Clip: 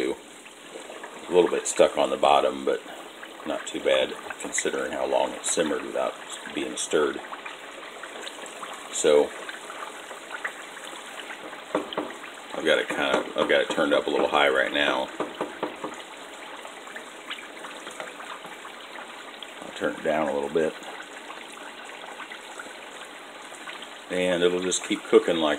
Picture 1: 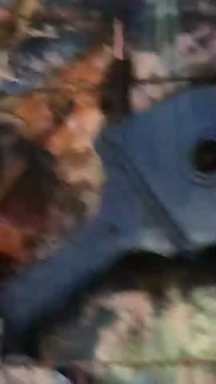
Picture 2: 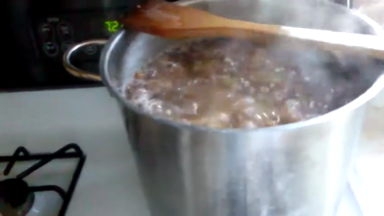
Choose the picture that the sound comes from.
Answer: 2